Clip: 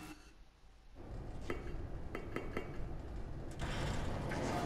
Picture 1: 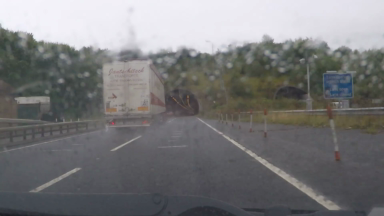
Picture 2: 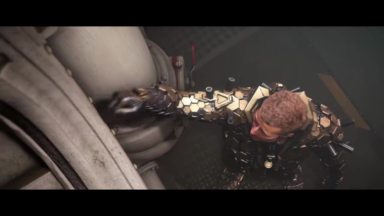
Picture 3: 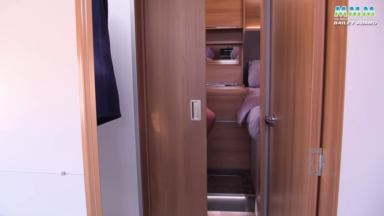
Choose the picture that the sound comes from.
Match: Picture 2